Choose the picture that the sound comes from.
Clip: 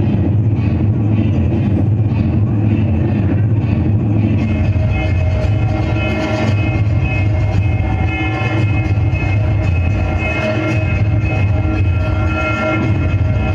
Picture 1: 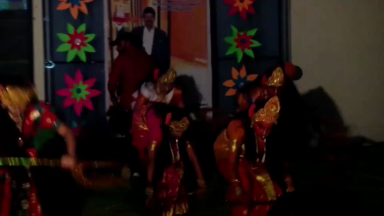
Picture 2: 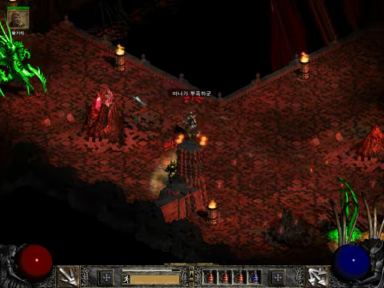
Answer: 1